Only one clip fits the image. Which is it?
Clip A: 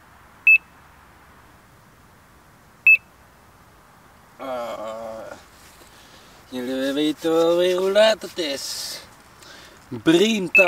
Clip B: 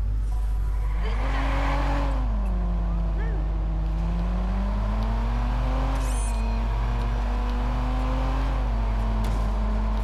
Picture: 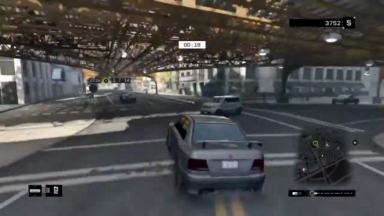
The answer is B